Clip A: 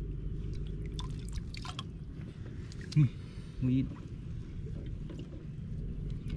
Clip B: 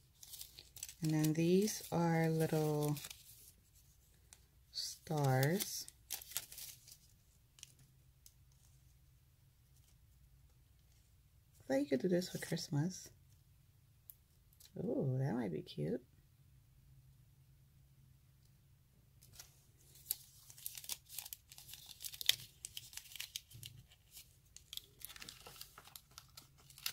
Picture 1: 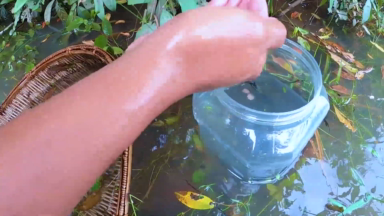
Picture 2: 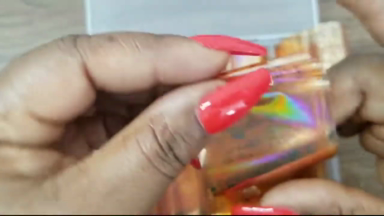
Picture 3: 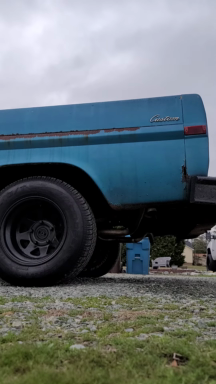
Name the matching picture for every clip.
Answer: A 1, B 2